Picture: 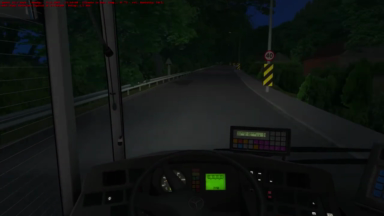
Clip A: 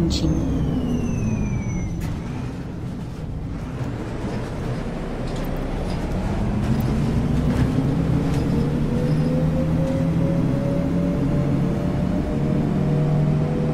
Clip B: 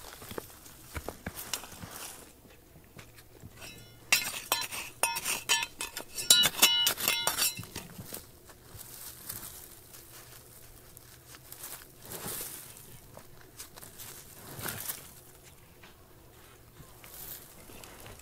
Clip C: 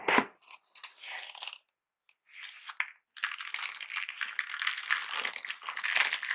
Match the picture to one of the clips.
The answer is A